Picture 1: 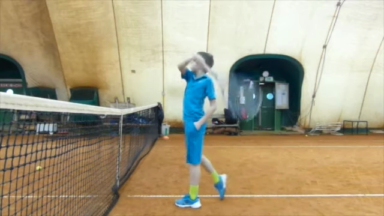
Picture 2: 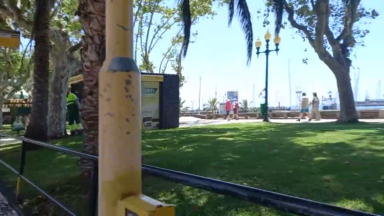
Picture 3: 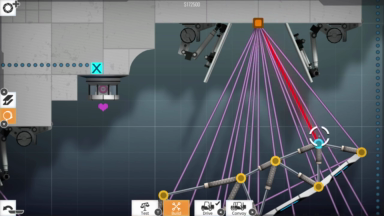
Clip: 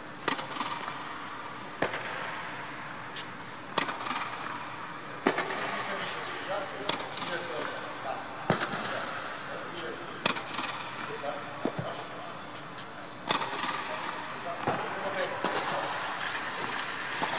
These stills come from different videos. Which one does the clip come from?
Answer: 1